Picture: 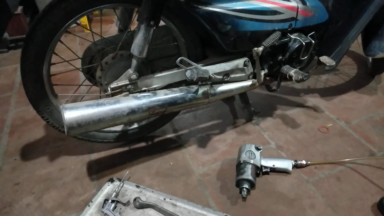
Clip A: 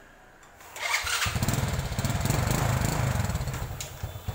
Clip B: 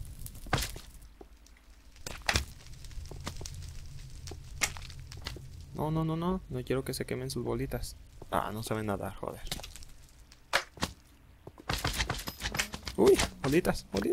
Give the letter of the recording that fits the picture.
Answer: A